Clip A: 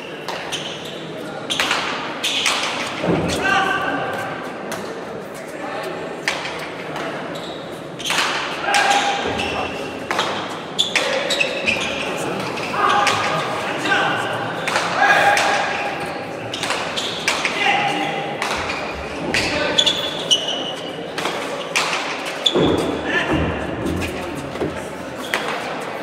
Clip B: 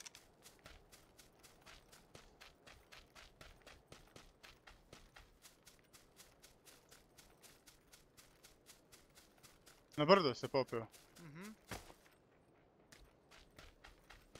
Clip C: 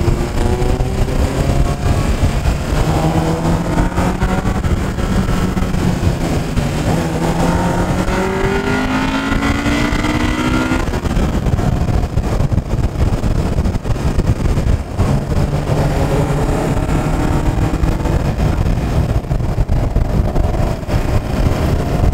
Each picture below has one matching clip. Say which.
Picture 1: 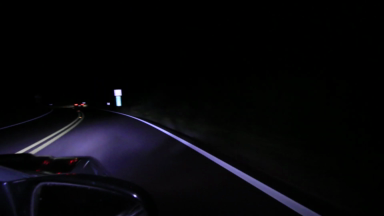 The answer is C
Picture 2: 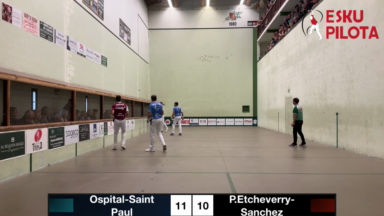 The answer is A